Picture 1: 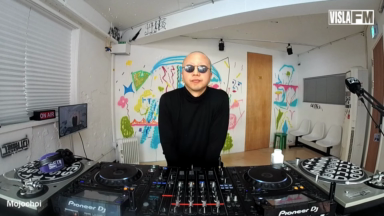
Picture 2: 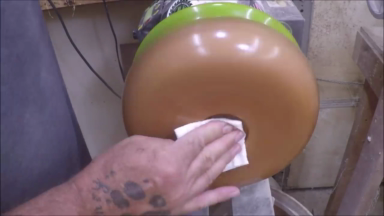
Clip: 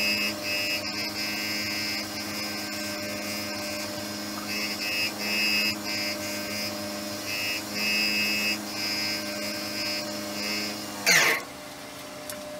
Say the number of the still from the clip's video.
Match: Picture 2